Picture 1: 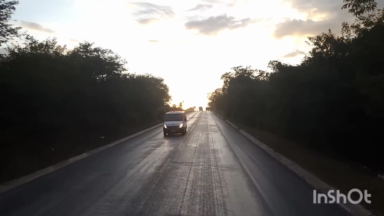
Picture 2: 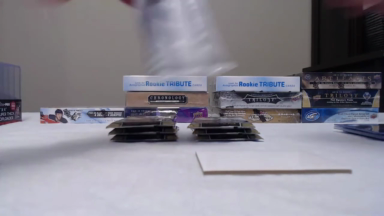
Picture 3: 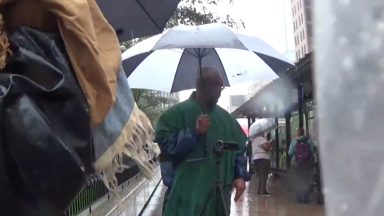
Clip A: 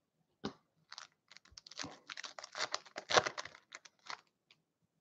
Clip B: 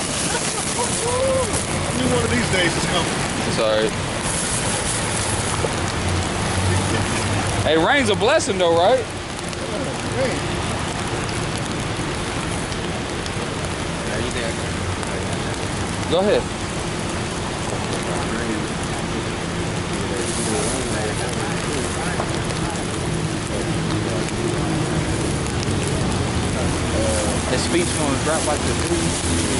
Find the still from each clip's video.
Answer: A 2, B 3